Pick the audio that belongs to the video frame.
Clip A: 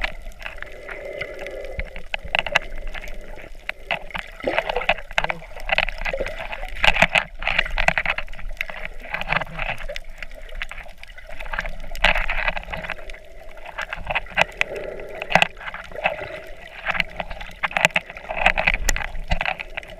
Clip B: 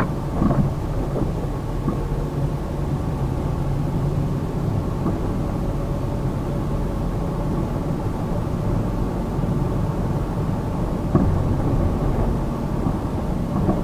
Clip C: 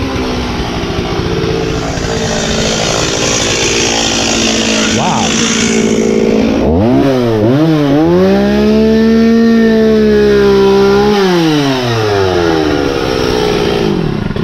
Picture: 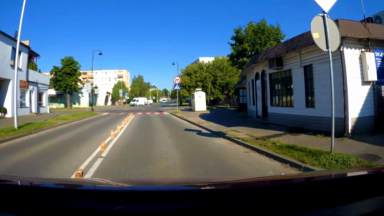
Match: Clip B